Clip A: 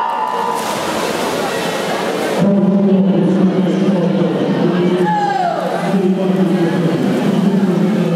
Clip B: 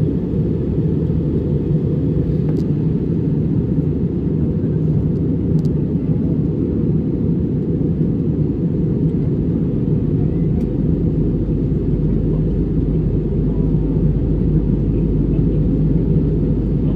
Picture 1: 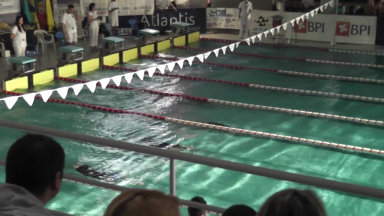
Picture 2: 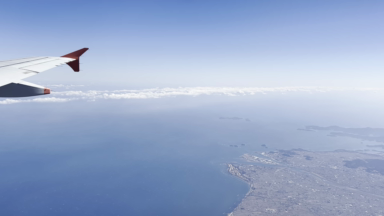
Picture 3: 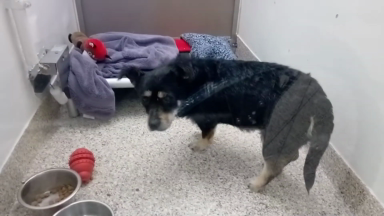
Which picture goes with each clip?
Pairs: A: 1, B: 2